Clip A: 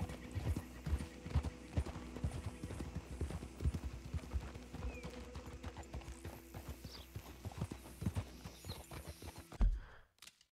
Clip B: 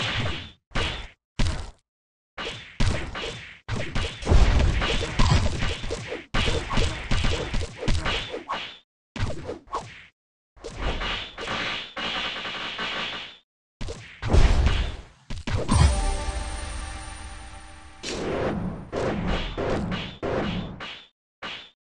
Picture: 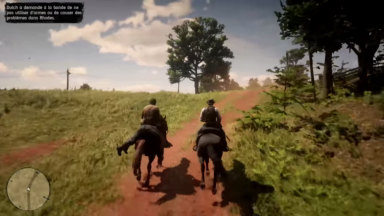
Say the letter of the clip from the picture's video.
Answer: A